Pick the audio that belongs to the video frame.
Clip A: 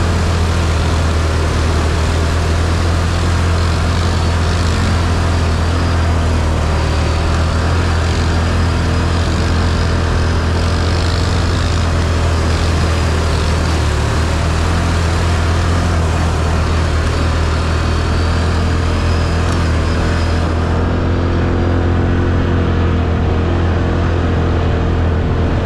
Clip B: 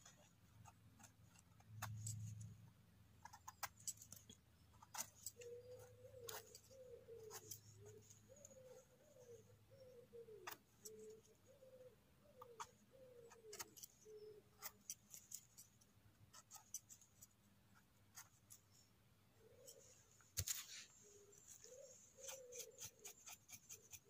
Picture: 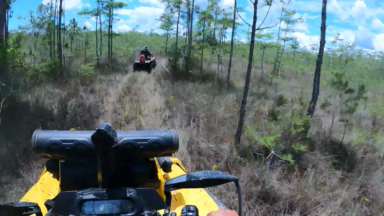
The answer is A